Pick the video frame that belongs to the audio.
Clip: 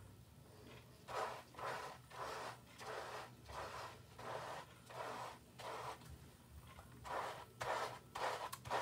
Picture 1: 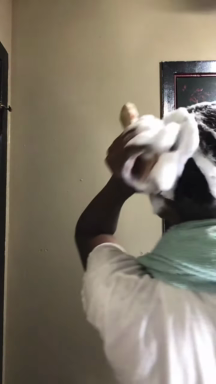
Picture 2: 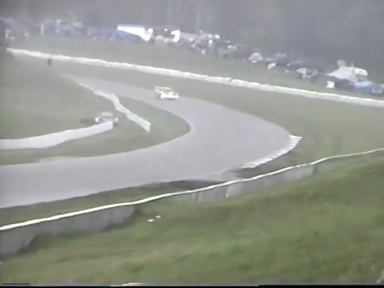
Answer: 1